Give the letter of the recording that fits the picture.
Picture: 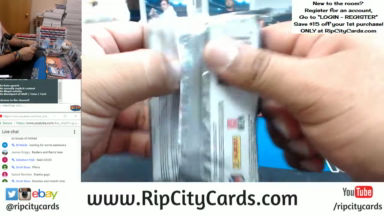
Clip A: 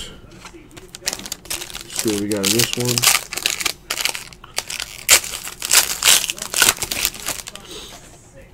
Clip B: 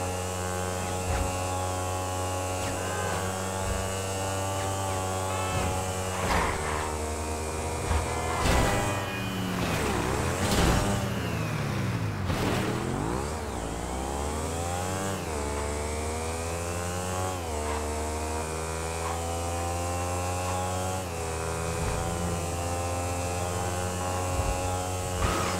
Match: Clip A